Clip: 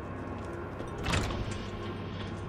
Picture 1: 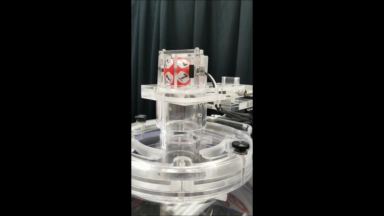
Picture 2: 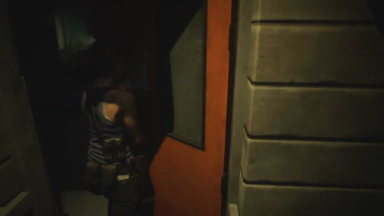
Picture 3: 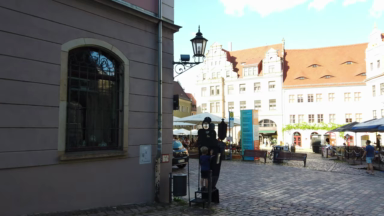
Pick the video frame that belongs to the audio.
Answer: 2